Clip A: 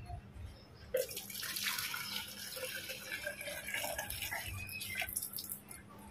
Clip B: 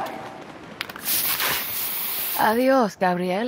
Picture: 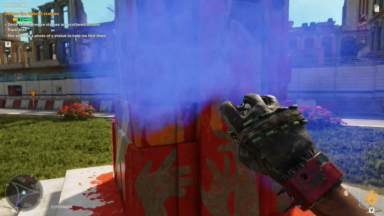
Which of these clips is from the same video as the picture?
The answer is B